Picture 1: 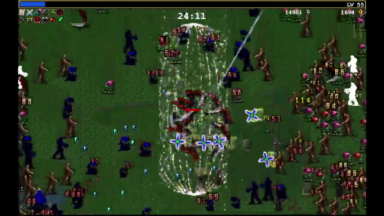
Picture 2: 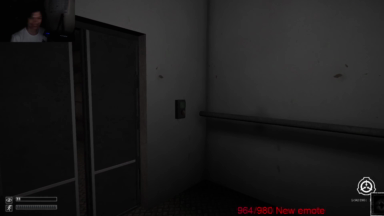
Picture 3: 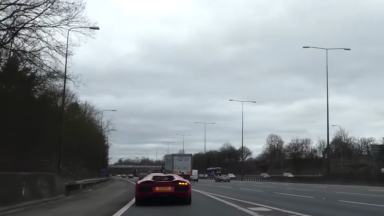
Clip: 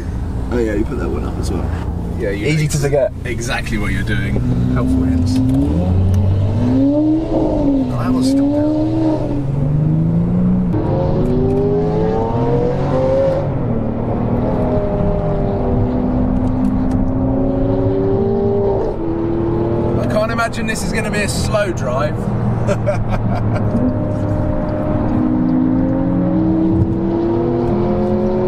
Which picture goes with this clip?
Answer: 3